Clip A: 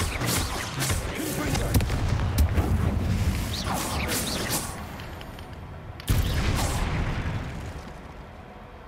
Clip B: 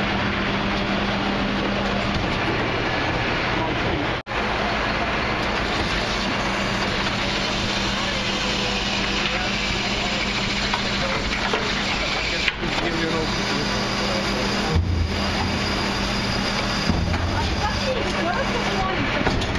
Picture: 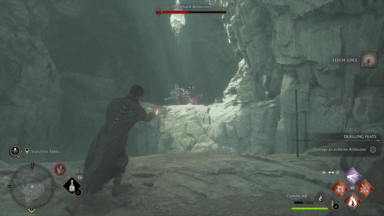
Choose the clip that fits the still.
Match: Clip A